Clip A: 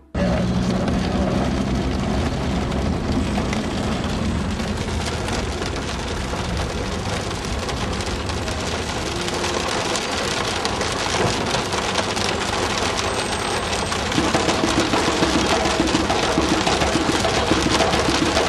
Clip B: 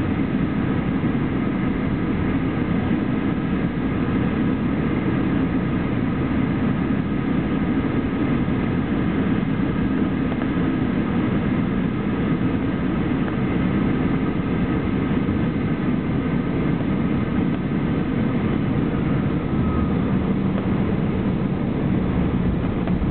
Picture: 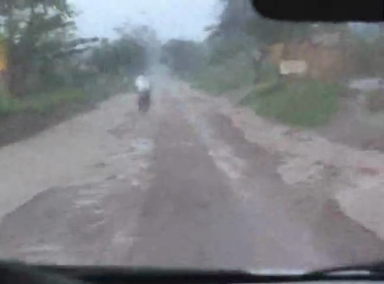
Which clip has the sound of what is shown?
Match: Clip A